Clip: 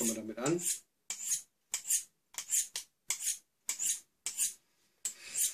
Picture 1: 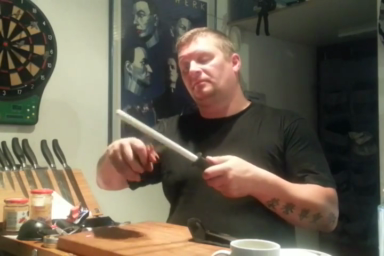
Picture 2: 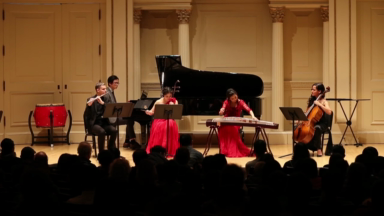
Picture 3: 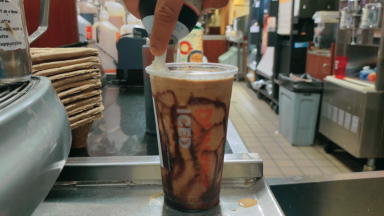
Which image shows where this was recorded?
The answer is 1